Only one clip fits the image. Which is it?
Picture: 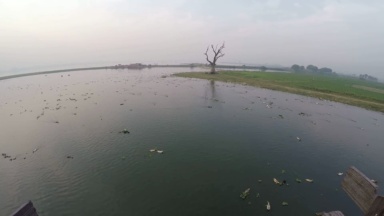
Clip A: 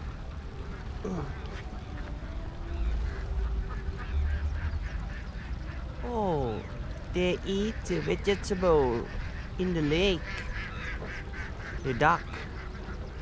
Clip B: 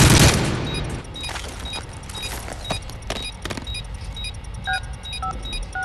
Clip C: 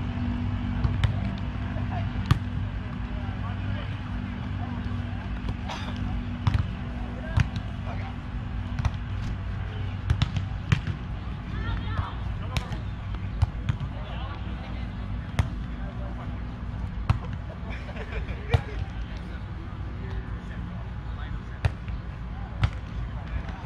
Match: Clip A